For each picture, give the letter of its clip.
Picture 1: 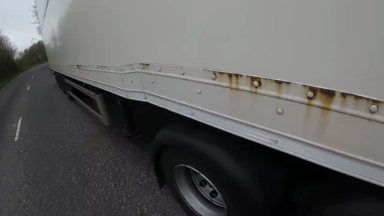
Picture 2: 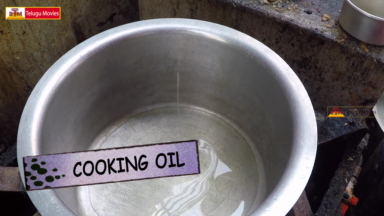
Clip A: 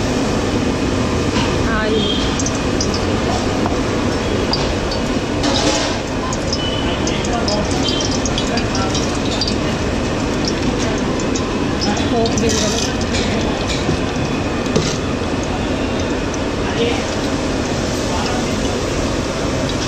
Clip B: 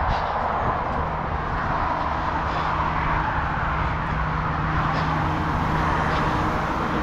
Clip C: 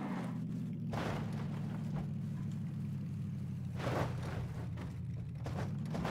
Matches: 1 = B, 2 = A